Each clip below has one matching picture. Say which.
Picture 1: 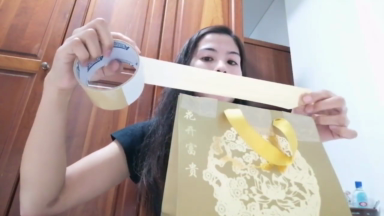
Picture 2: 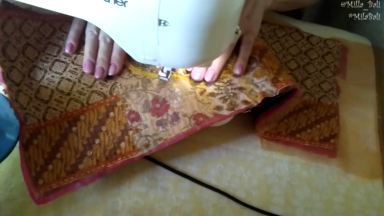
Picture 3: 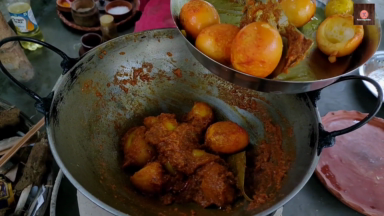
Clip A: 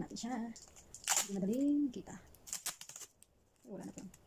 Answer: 1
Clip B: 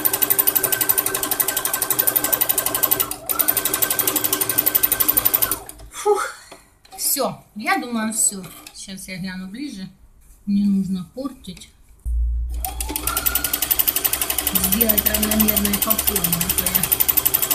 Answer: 2